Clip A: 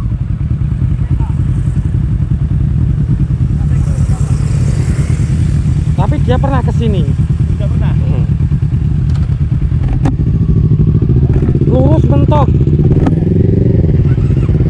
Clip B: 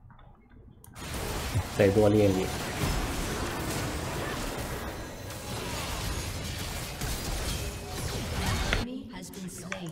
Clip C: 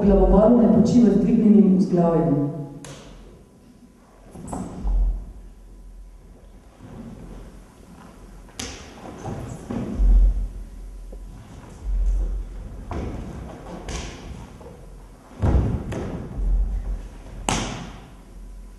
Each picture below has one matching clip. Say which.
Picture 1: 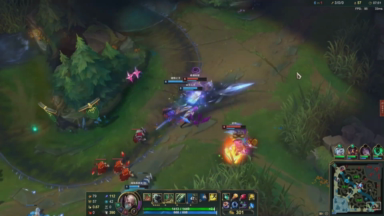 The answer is B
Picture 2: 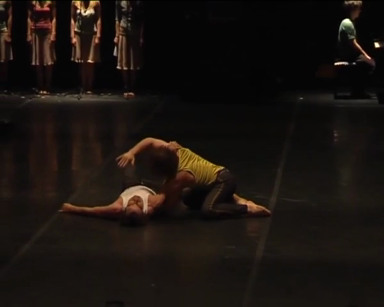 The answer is C